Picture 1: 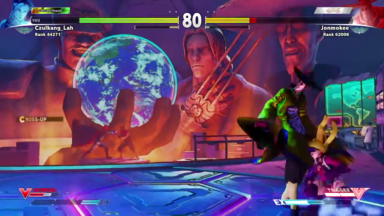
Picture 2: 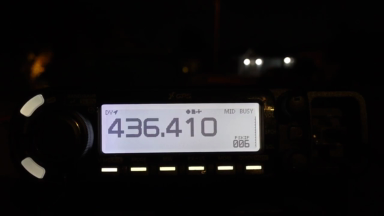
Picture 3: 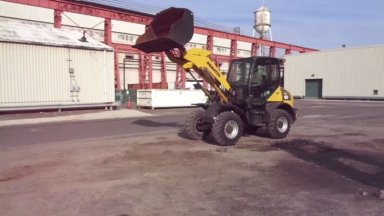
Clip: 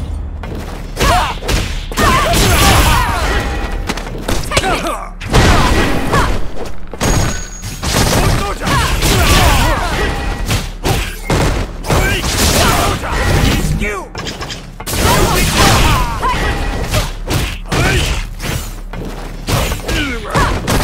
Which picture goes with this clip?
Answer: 1